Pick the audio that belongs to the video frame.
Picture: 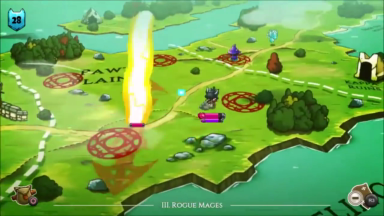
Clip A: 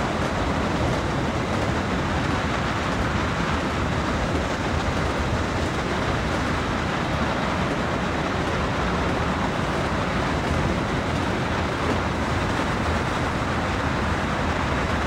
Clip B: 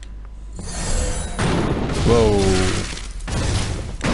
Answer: B